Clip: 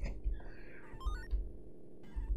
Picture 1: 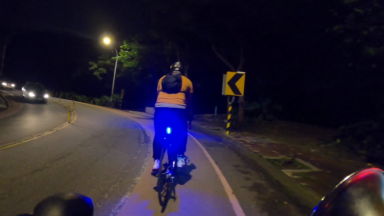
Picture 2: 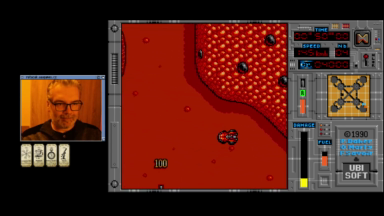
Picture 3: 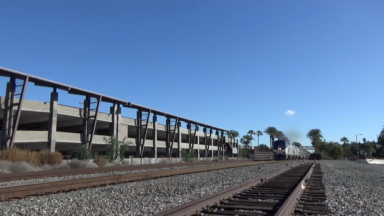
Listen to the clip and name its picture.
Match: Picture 2